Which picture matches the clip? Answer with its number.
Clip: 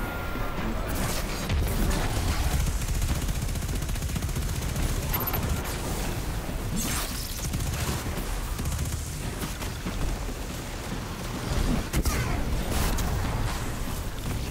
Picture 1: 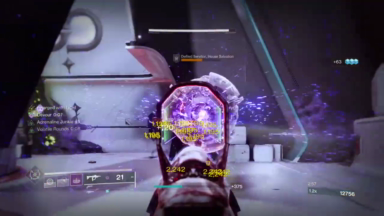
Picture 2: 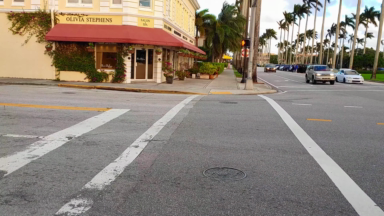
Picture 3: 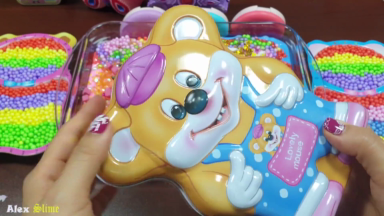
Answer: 1